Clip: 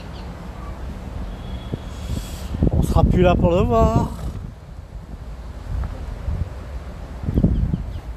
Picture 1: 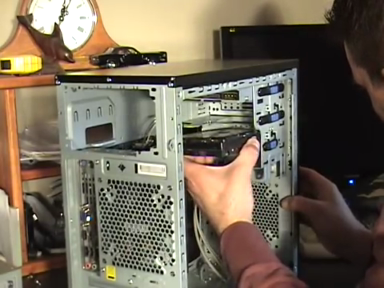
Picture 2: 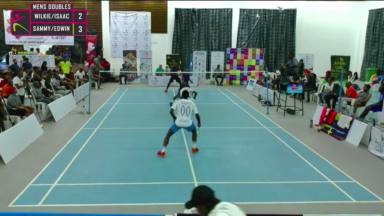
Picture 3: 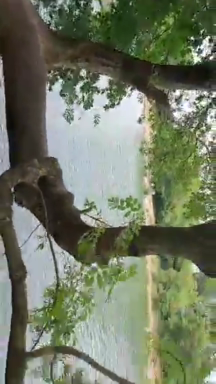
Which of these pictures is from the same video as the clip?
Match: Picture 3